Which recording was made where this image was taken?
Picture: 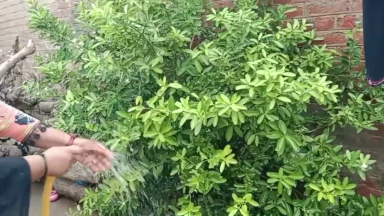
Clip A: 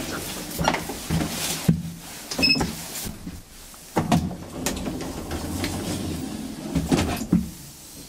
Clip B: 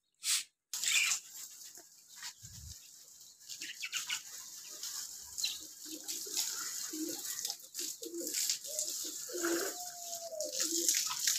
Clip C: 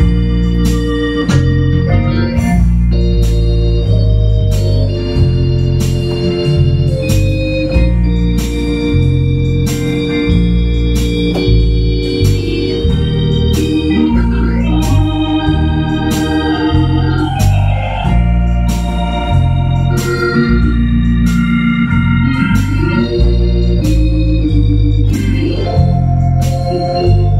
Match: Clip B